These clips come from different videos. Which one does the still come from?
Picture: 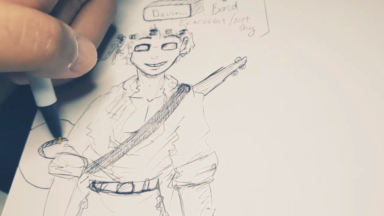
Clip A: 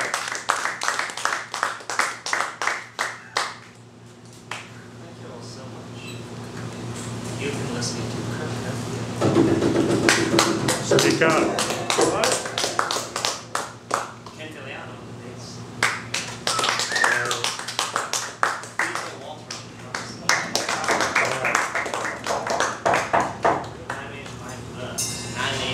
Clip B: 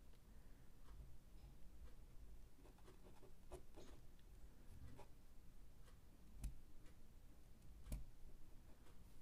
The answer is B